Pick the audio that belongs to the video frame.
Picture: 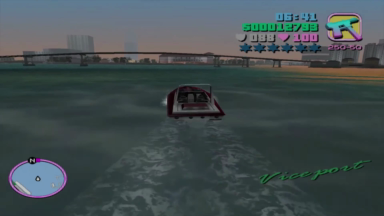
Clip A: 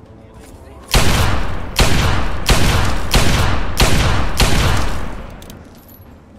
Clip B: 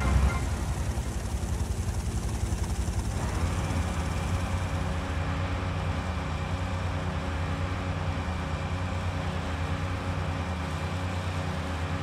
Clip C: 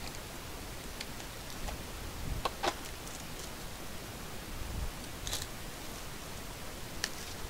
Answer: B